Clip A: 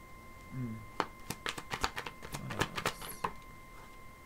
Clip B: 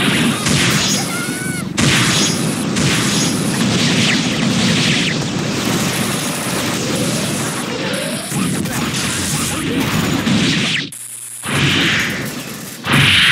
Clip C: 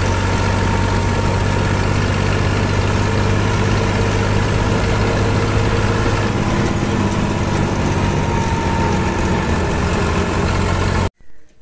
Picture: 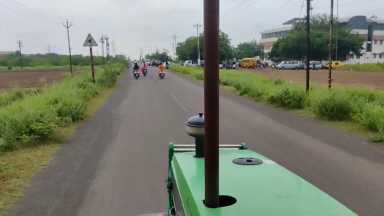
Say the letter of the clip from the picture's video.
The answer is C